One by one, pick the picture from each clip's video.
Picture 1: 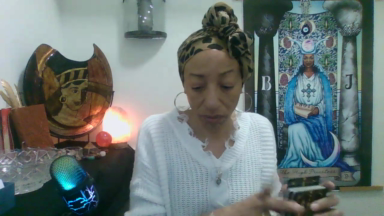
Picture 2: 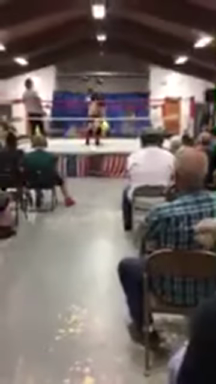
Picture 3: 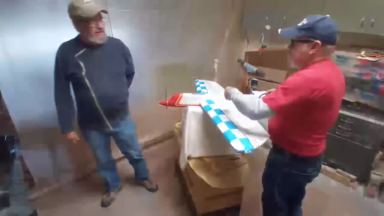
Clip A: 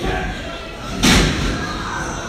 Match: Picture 2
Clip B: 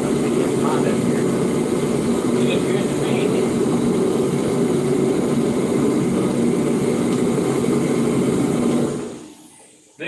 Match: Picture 3